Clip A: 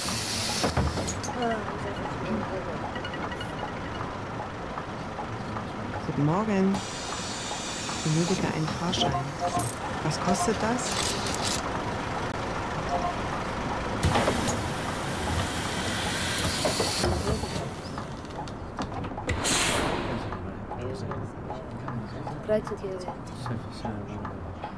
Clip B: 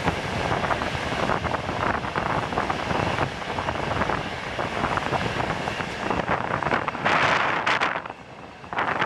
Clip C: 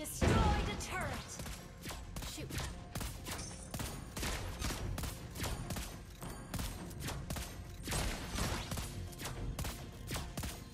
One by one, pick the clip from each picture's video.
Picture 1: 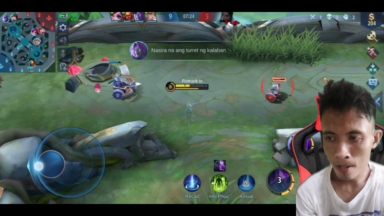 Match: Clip C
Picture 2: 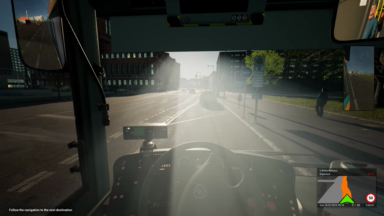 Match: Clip A